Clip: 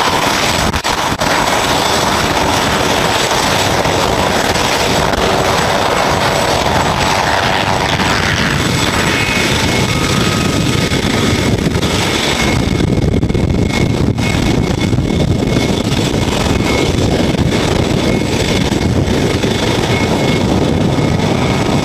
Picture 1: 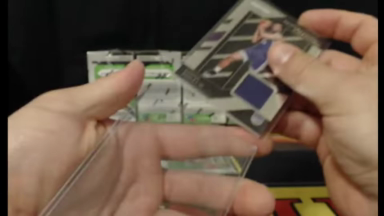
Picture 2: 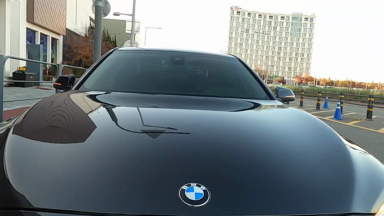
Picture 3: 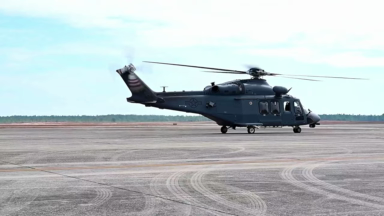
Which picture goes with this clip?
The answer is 3